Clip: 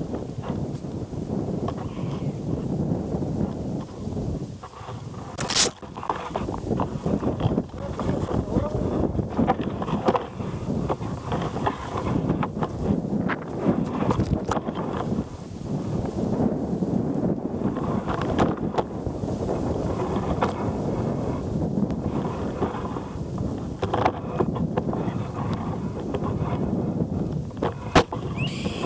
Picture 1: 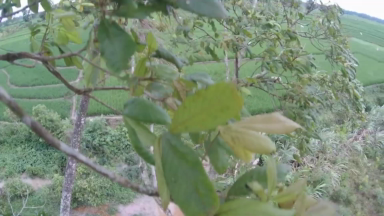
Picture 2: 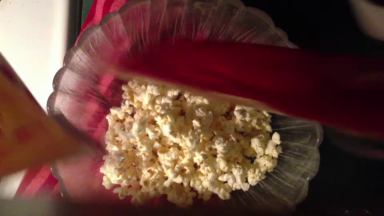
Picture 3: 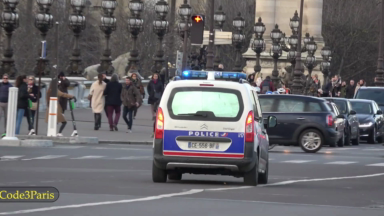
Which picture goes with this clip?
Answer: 1